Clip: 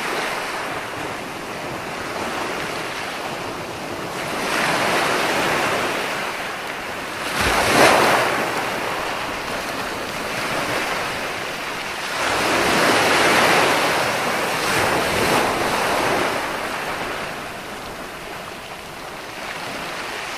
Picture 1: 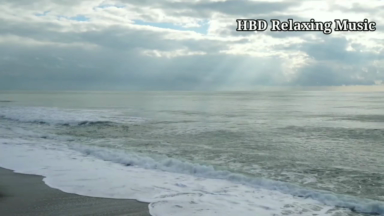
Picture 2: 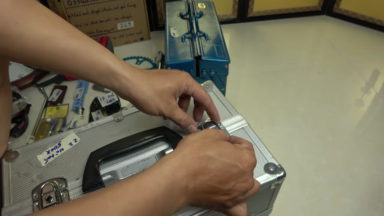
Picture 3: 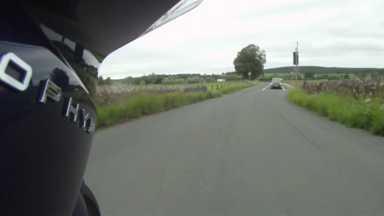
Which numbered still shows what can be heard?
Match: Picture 1